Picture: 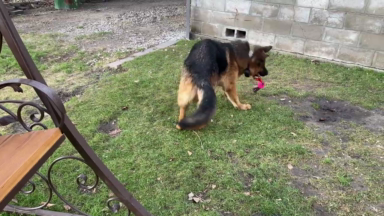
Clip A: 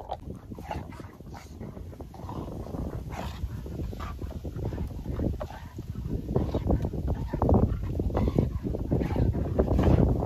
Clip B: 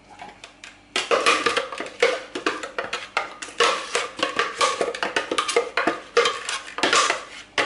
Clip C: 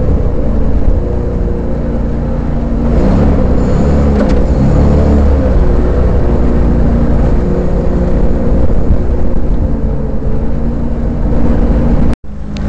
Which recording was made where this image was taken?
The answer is A